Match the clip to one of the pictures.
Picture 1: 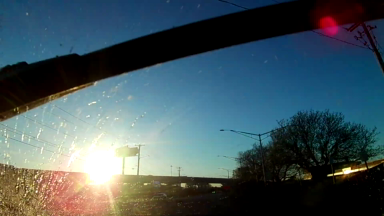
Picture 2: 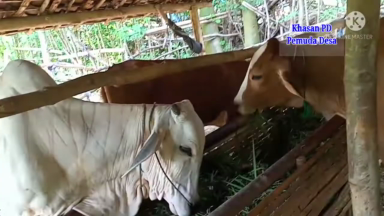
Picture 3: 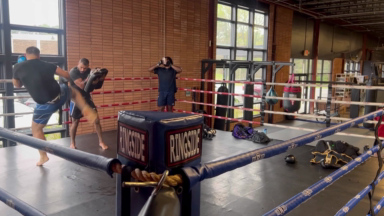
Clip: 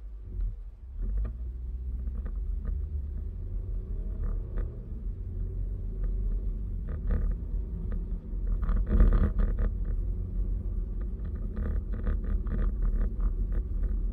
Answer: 1